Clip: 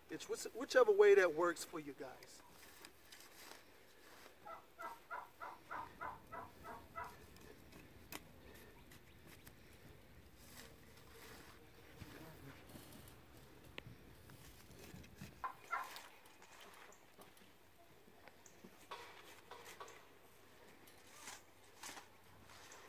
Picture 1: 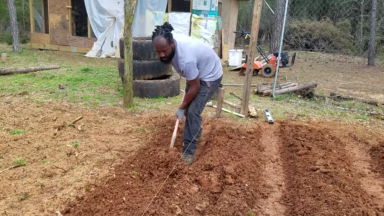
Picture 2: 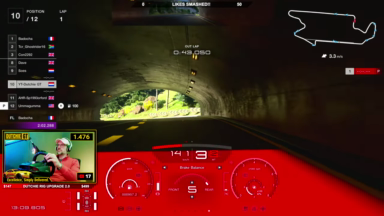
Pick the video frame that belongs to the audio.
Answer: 1